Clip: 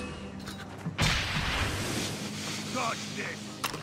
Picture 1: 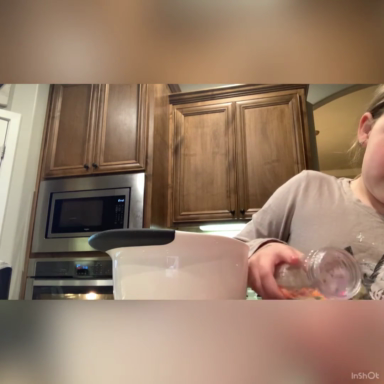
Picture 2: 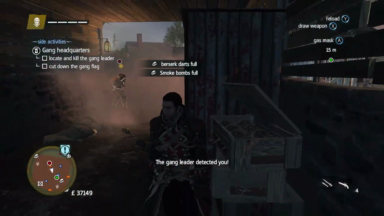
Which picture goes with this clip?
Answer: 2